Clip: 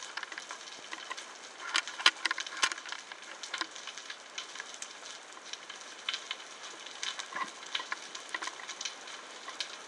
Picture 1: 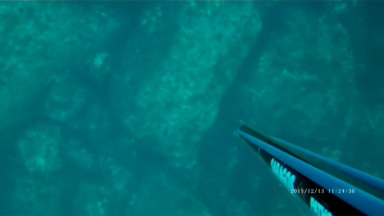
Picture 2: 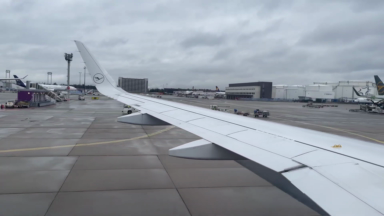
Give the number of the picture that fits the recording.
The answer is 1